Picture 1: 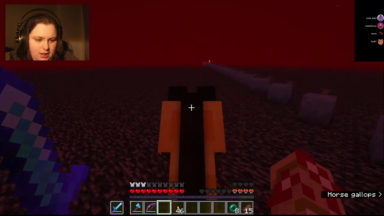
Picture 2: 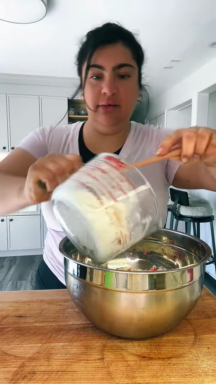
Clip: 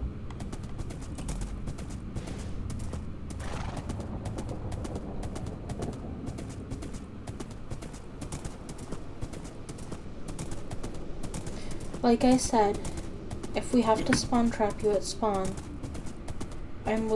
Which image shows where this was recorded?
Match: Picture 1